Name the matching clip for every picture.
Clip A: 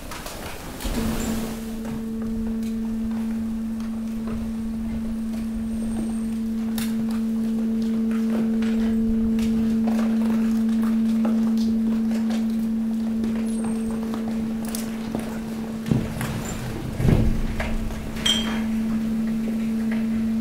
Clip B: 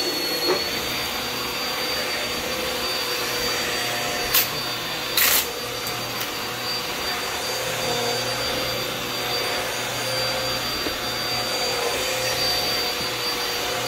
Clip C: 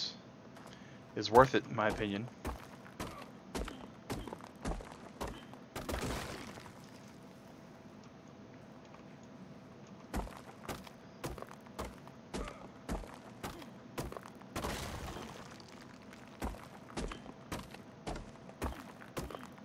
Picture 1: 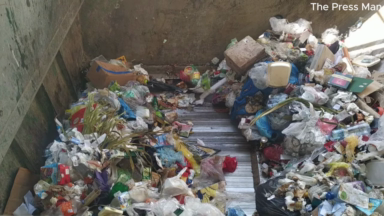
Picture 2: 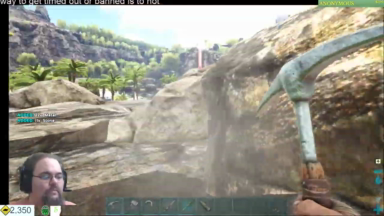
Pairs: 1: A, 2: C